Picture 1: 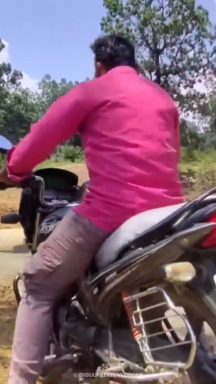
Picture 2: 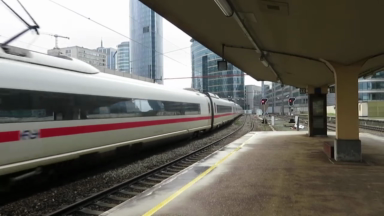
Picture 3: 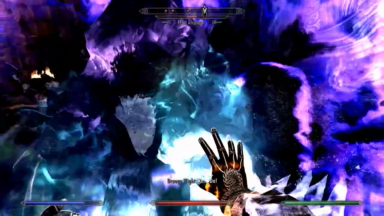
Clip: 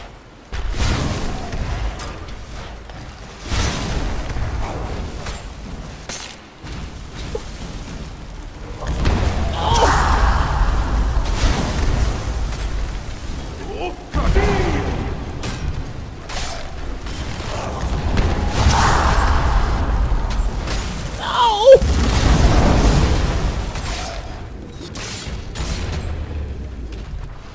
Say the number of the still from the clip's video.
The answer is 3